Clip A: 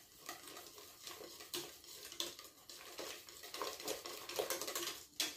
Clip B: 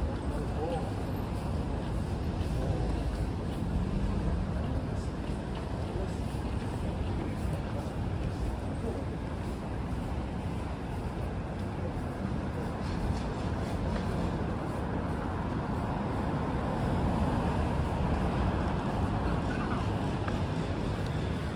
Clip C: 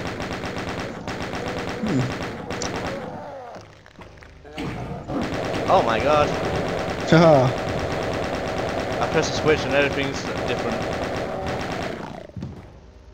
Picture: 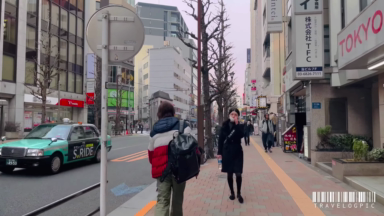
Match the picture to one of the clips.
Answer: B